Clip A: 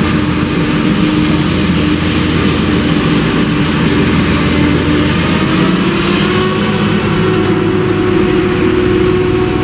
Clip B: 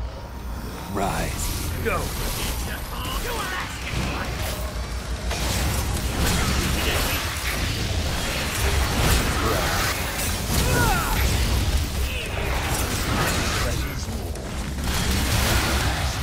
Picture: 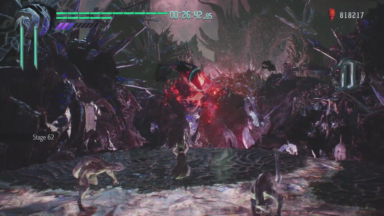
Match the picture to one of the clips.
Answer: B